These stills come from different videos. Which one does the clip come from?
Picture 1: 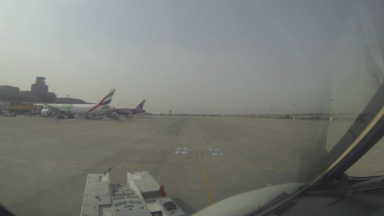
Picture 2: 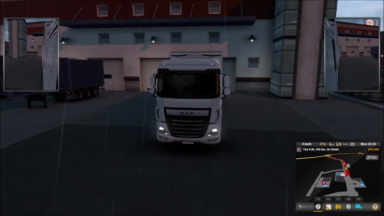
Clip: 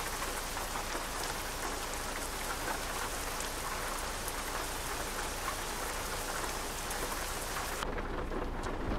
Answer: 2